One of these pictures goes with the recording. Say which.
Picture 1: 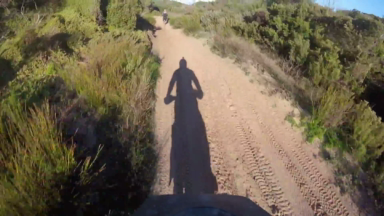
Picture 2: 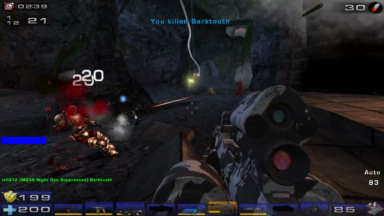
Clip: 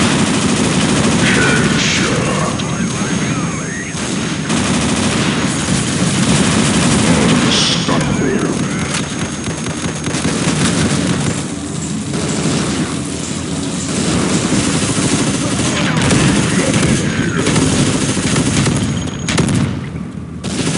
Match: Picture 2